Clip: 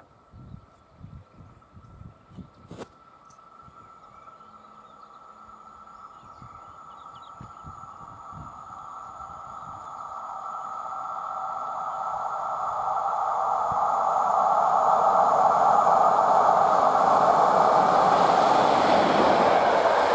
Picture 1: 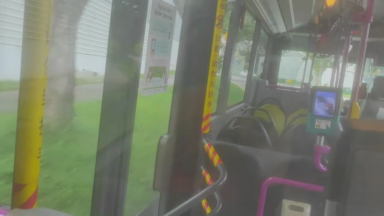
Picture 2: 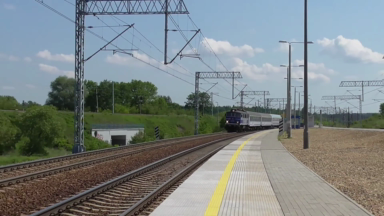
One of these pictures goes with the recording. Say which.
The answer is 2